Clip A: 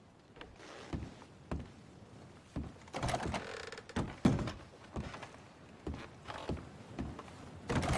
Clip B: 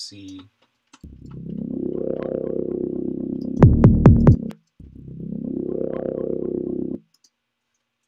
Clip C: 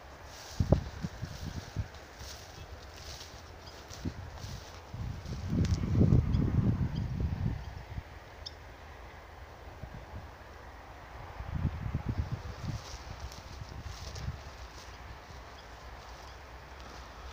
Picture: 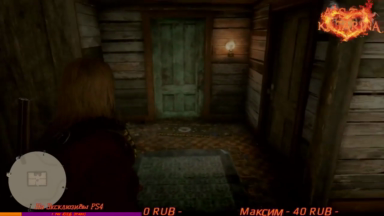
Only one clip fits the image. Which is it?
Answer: A